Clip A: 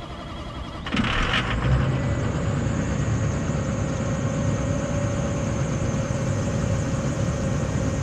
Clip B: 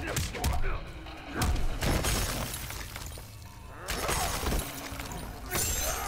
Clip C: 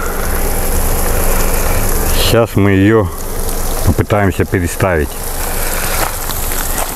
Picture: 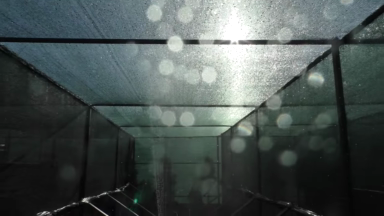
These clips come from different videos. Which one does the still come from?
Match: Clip C